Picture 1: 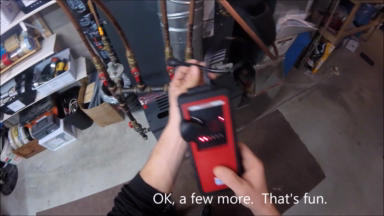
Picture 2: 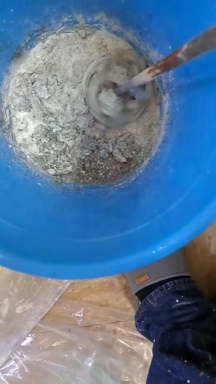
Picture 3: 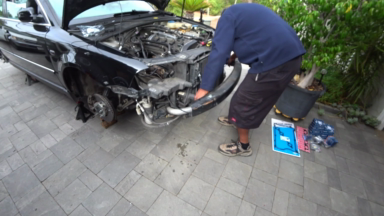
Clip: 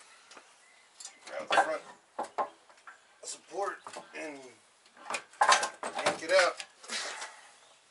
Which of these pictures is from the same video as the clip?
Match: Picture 3